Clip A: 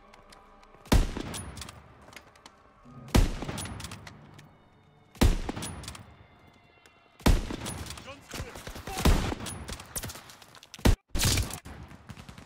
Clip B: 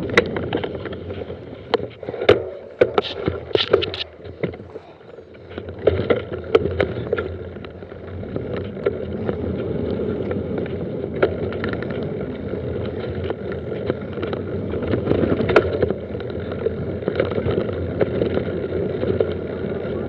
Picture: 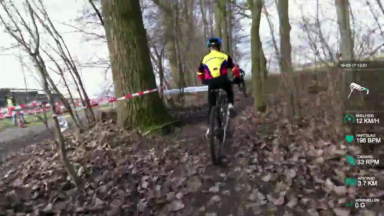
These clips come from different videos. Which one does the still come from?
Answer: B